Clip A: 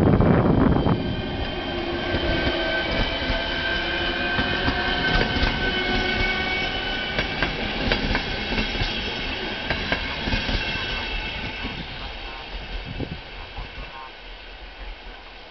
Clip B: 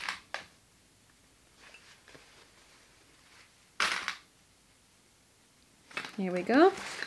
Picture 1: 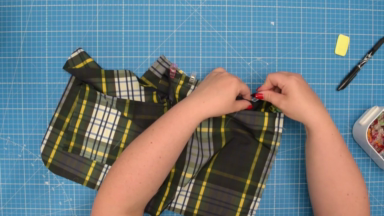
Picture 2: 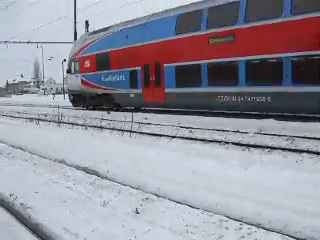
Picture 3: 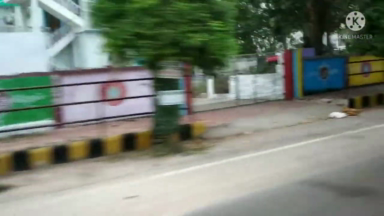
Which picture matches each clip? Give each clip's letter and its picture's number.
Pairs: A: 2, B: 1